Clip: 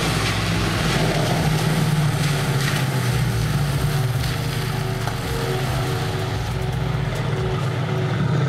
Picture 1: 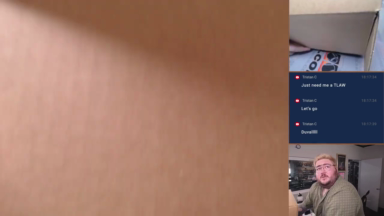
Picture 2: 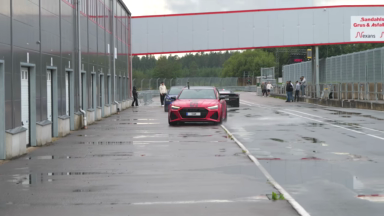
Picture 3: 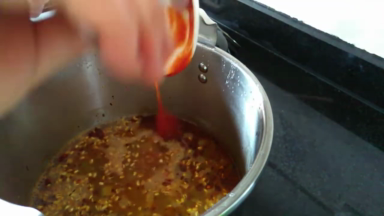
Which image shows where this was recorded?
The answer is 2